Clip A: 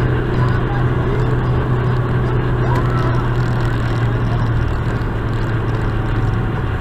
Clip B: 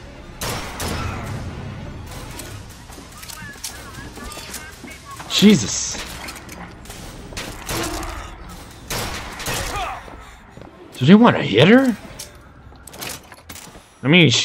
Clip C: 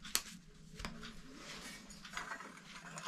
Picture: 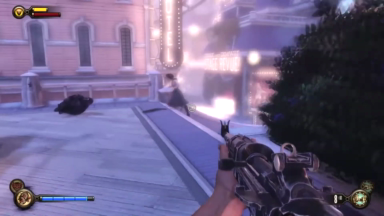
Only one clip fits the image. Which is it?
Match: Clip B